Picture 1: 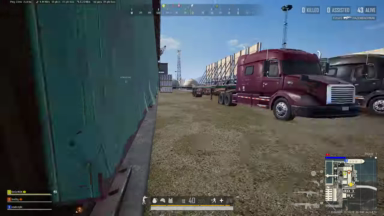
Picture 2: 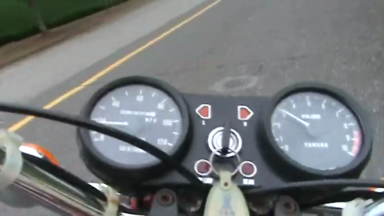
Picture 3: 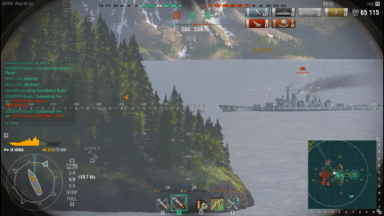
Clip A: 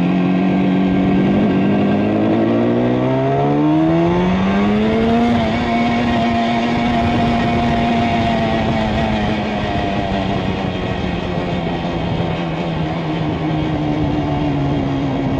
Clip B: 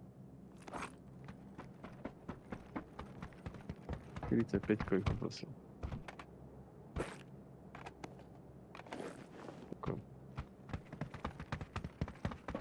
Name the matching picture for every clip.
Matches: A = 2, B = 1